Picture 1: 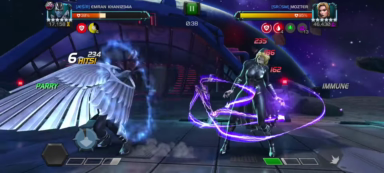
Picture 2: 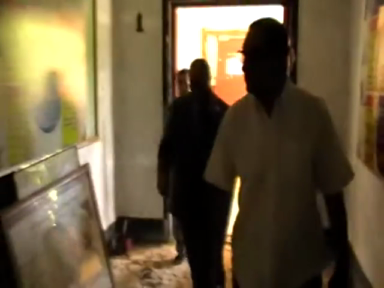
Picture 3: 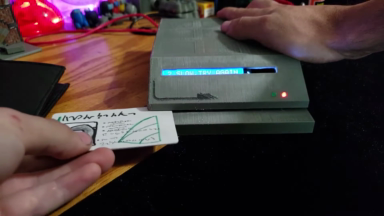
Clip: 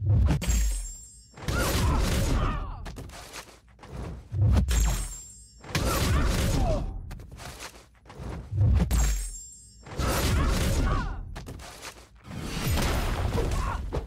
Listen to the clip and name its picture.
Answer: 1